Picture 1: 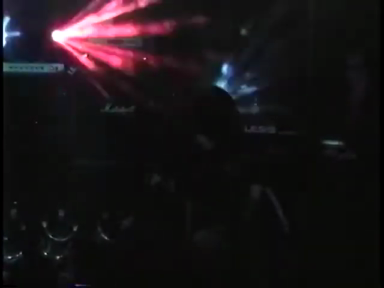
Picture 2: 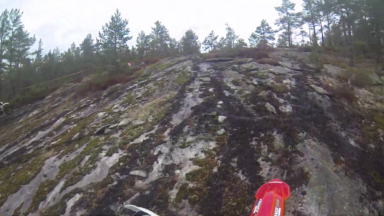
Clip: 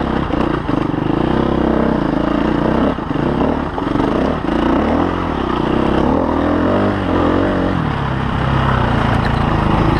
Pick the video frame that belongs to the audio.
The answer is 2